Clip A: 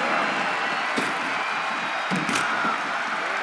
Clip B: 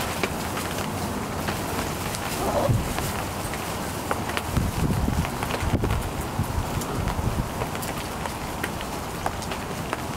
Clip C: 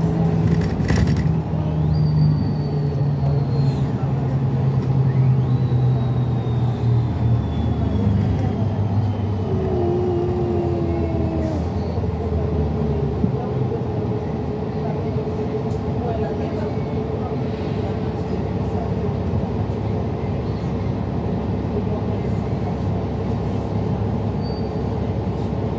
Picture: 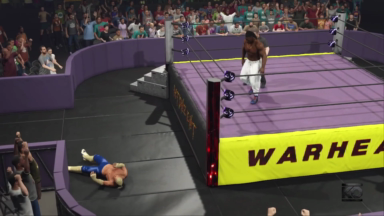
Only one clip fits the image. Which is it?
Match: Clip A